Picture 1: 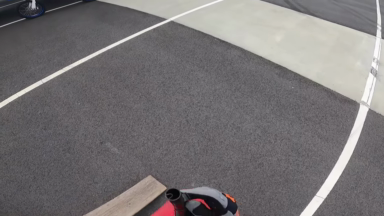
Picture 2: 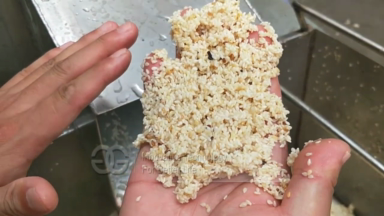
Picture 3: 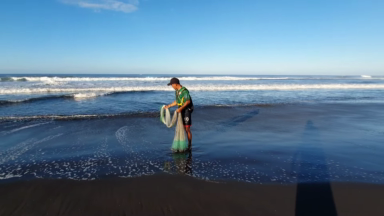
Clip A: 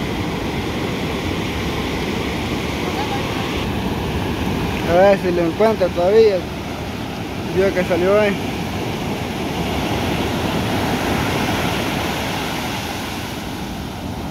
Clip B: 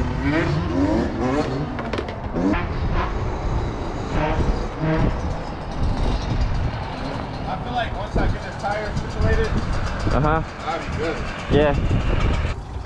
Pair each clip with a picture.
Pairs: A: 3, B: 1